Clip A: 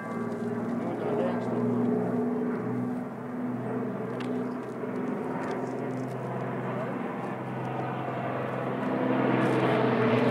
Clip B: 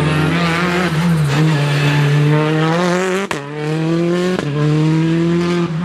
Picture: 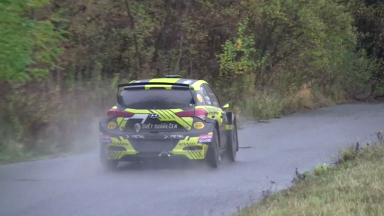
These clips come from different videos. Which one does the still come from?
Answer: B